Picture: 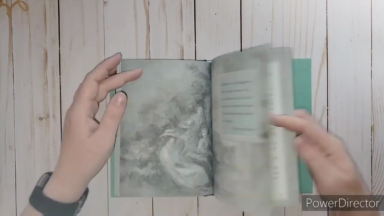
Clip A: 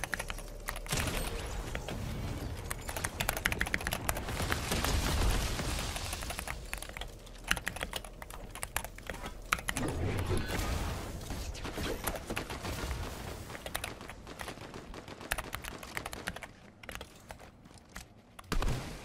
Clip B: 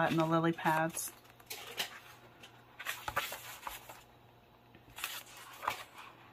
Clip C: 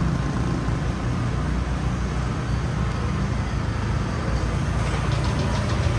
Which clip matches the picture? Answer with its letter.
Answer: B